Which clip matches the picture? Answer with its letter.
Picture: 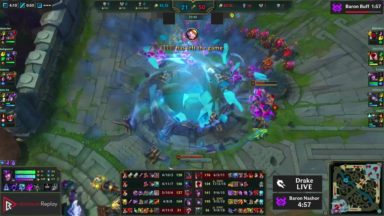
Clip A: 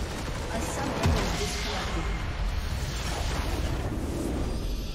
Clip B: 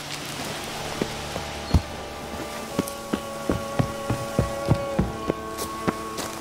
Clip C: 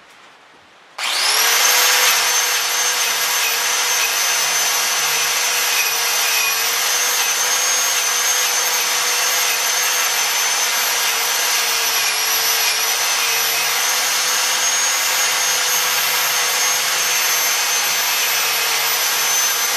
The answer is A